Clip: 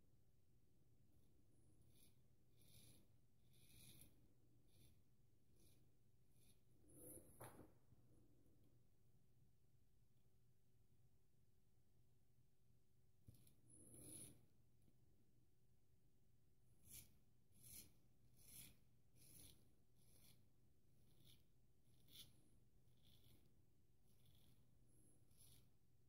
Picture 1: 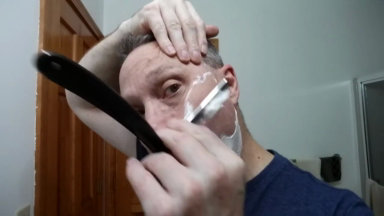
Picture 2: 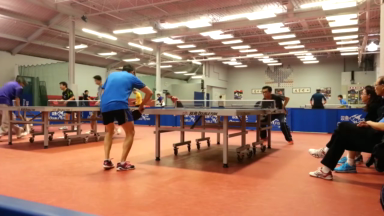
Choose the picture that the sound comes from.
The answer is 1